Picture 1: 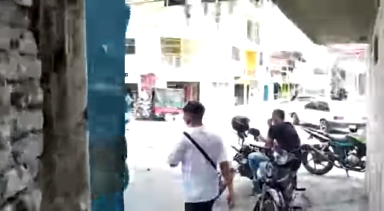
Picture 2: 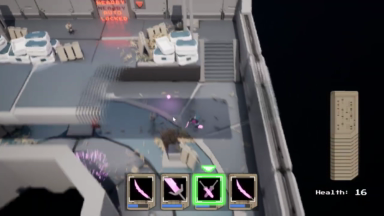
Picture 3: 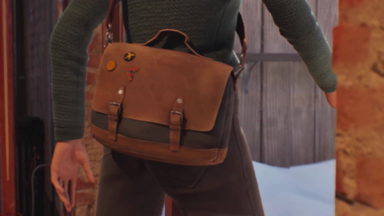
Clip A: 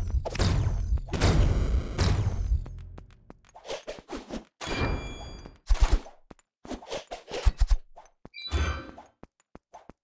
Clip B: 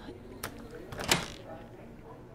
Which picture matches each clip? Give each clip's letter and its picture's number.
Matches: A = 2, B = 3